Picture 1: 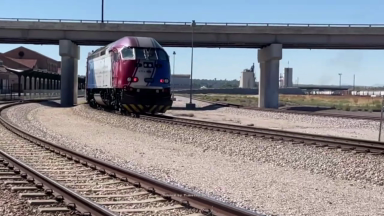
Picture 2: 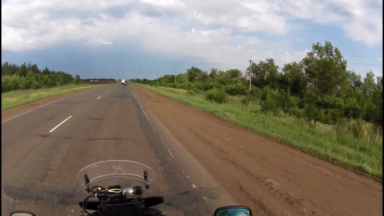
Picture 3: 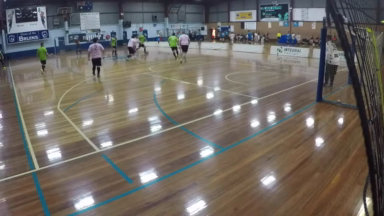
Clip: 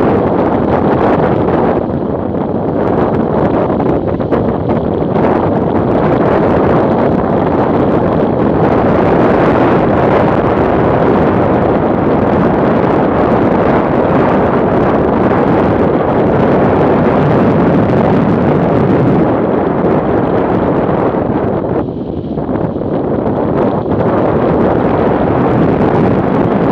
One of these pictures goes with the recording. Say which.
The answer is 2